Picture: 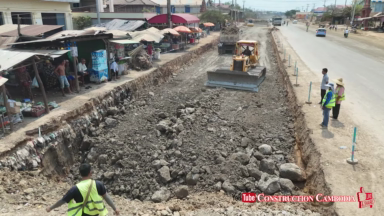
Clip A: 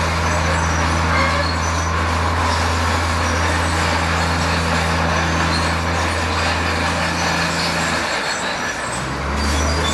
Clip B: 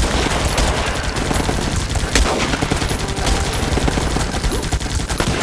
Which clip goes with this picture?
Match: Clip A